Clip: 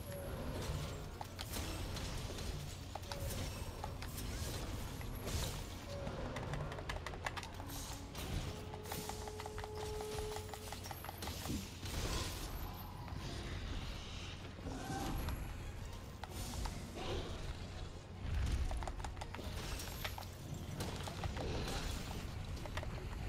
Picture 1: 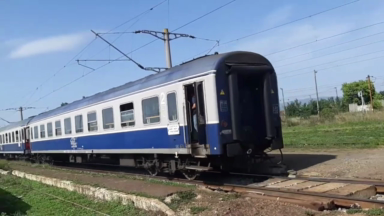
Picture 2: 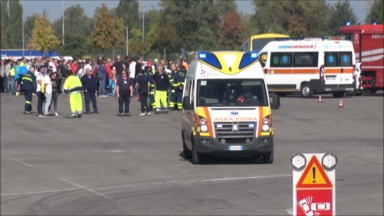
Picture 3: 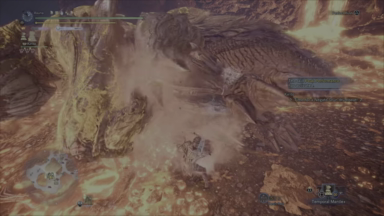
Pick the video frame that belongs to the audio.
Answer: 3